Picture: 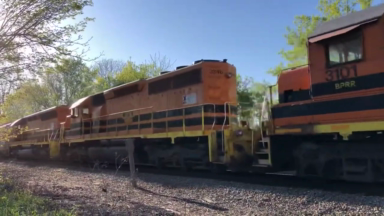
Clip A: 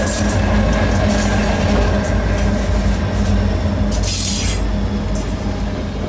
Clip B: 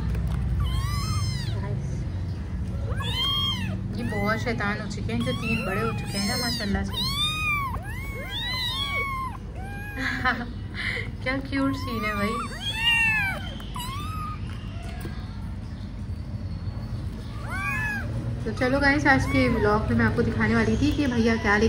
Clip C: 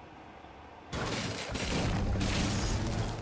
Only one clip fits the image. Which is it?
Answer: A